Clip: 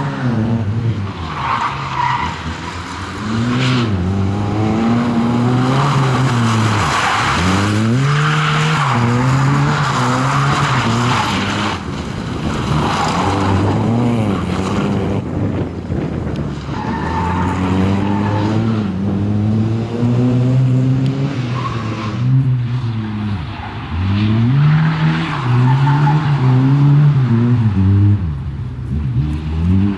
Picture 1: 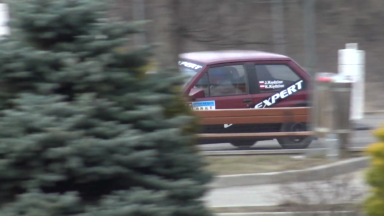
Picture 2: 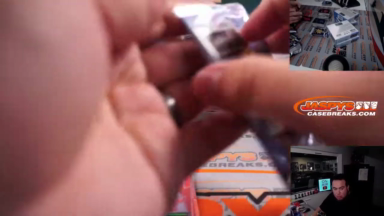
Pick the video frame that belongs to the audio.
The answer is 1